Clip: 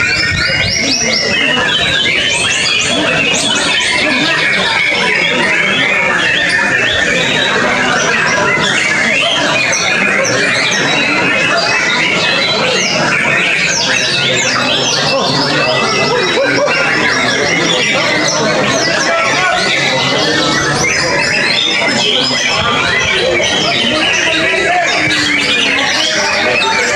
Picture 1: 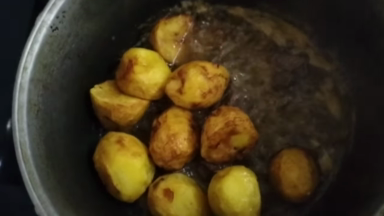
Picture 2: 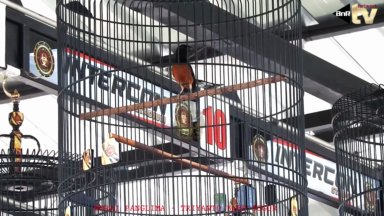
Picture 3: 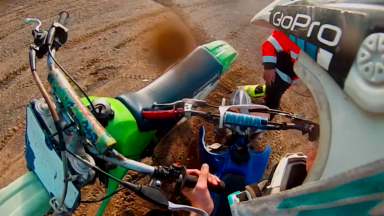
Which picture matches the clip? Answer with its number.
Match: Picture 2